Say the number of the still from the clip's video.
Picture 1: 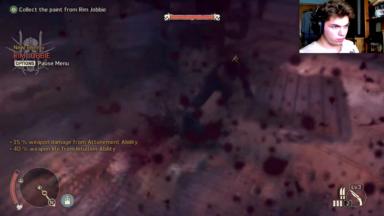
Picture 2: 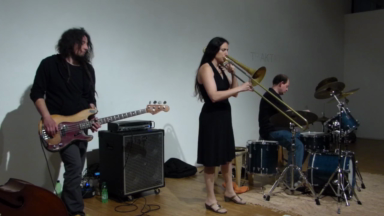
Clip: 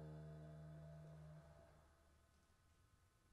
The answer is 2